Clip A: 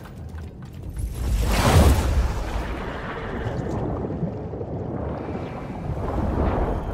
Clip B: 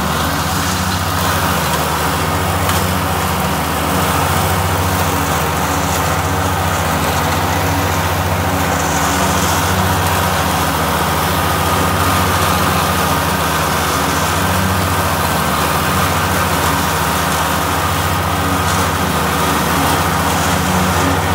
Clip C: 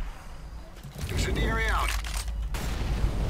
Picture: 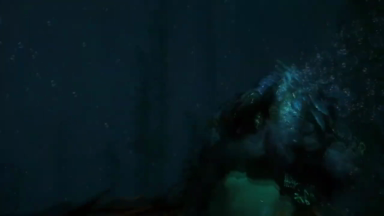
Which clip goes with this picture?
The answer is A